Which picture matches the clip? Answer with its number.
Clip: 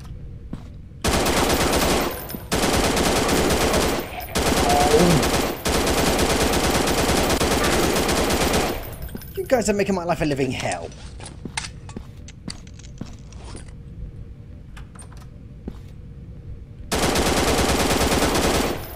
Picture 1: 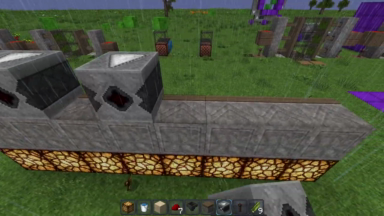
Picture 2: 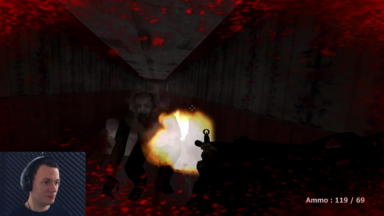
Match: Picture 2